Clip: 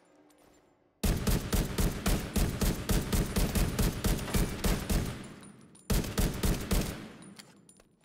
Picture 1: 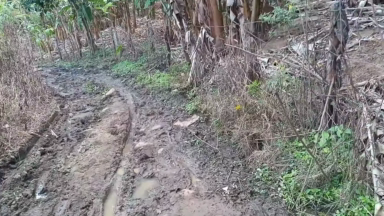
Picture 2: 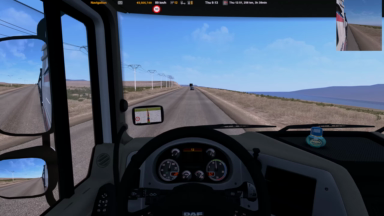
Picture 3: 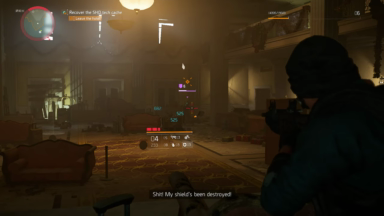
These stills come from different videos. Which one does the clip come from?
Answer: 3